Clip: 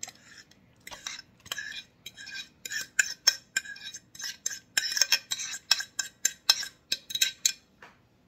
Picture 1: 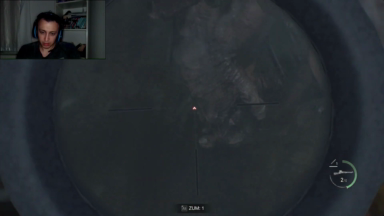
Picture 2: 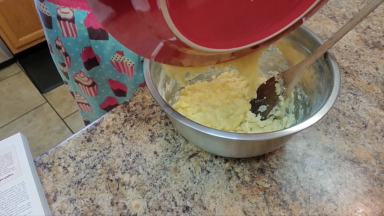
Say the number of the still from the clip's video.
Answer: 2